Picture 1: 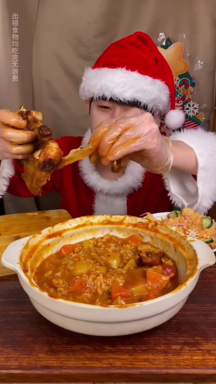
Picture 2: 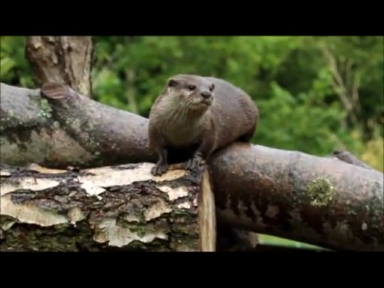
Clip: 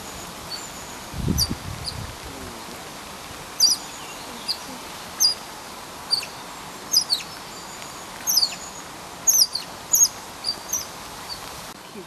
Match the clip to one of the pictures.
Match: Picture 2